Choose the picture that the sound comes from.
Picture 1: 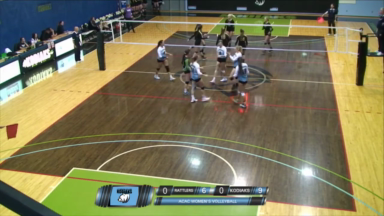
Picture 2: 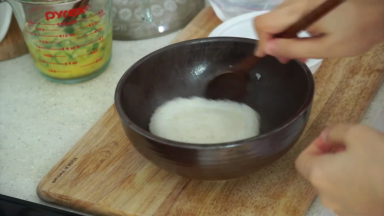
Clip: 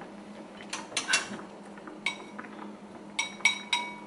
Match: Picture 2